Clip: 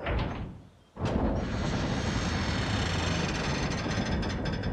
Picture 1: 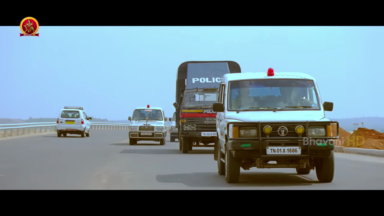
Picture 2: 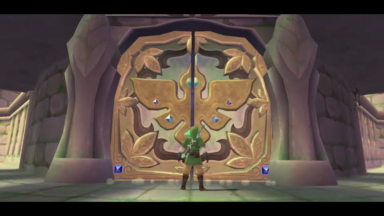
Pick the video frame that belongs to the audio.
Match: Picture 2